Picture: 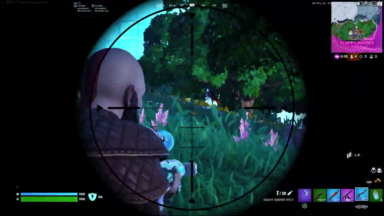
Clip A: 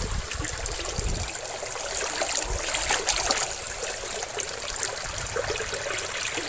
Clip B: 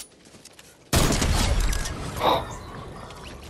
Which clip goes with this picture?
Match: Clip B